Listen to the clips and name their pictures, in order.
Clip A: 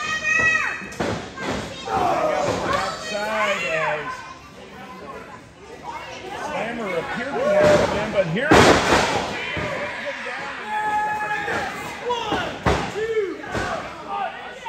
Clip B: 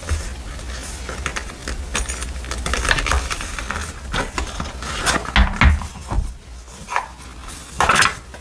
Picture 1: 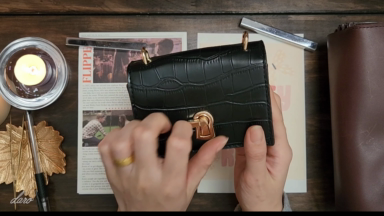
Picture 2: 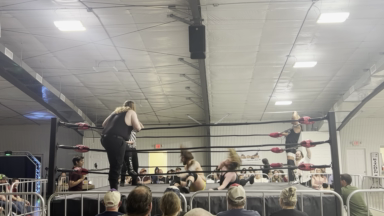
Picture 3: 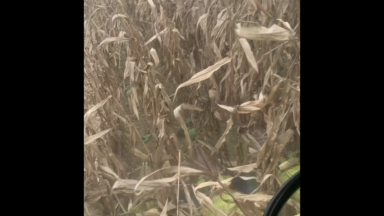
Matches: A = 2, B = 1